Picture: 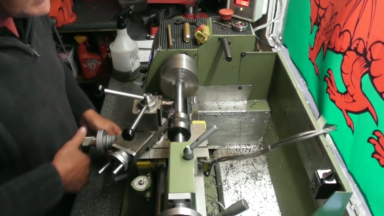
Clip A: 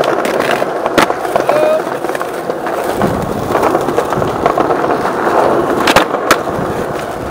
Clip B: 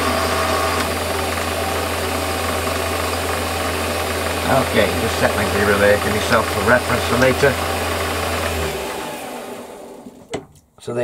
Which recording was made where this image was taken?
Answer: B